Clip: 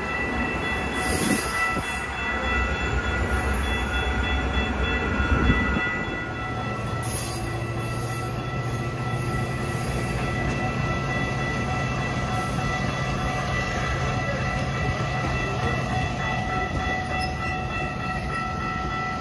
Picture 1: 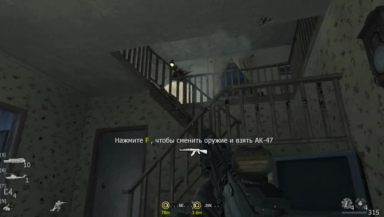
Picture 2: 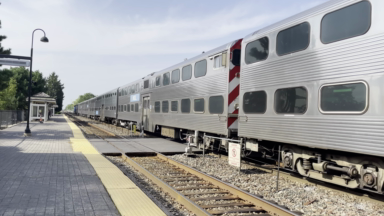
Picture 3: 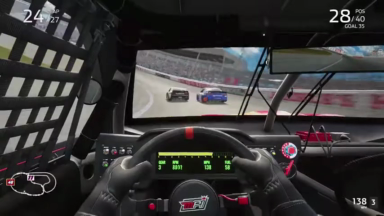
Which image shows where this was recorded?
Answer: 2